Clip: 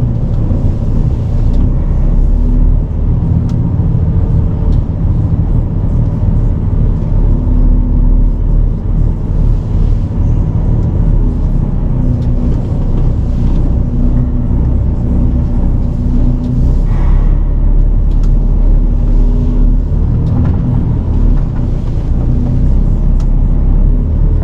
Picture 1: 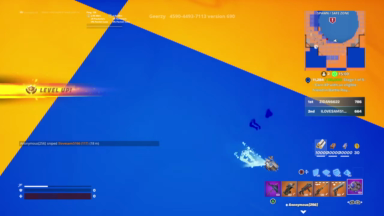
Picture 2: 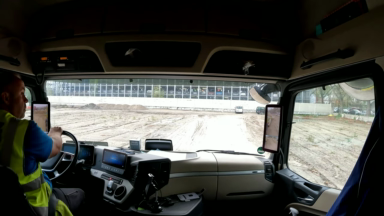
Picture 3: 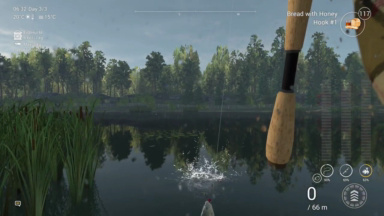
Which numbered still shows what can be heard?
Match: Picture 2